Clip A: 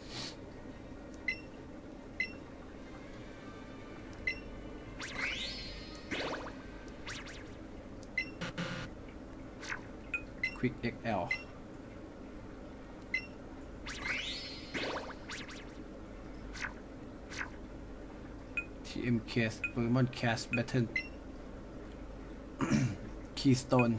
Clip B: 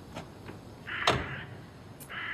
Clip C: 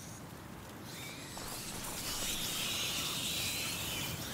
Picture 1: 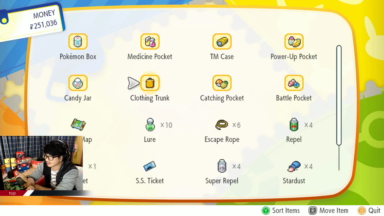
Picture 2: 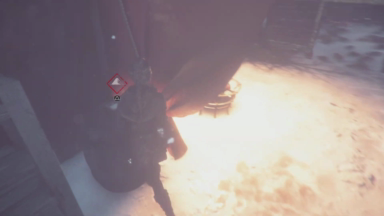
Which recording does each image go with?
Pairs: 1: A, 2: C